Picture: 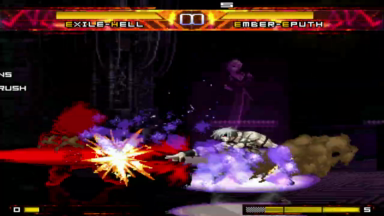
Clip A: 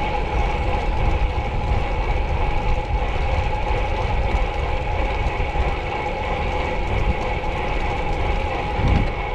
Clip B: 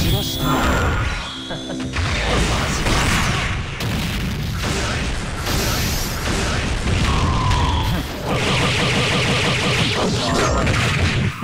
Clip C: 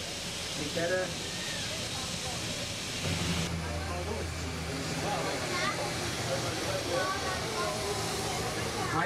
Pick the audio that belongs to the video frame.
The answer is B